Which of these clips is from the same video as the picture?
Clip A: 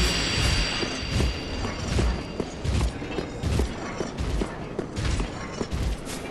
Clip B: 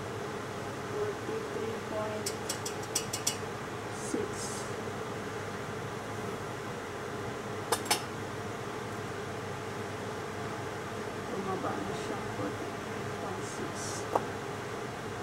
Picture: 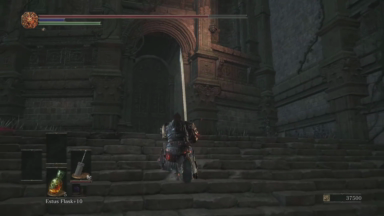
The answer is A